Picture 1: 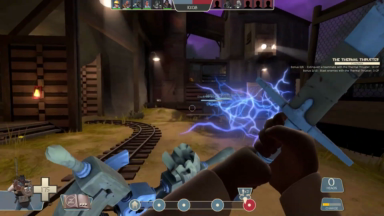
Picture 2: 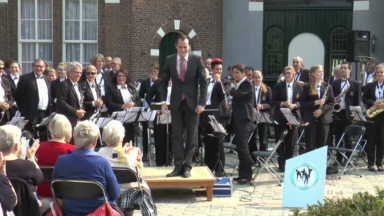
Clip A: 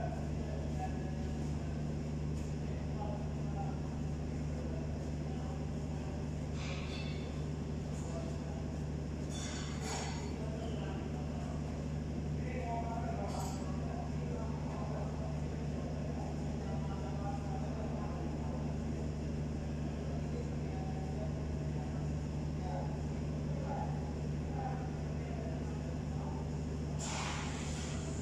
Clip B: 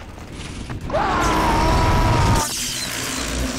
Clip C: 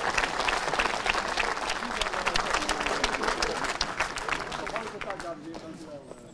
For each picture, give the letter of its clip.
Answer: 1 B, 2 C